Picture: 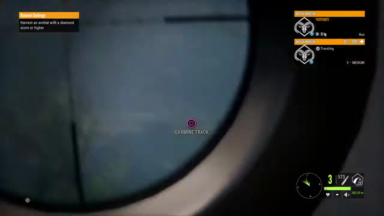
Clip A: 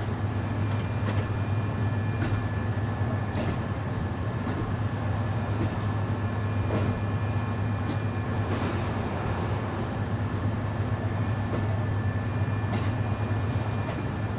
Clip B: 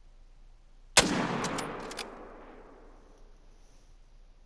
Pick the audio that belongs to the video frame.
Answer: B